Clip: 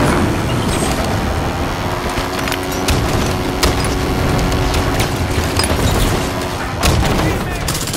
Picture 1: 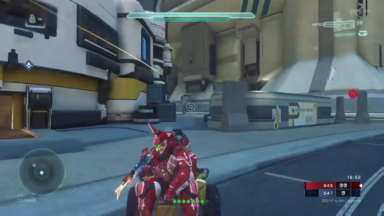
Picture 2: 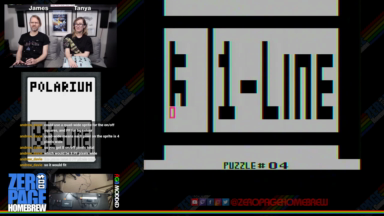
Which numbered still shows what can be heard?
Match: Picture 1